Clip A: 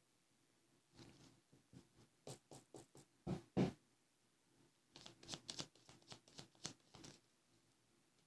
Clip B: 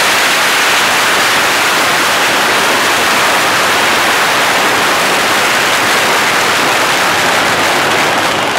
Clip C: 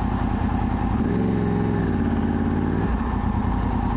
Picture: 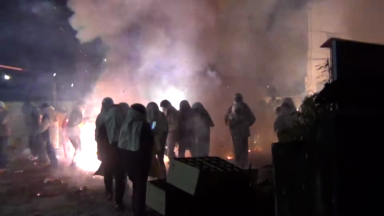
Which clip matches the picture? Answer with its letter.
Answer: B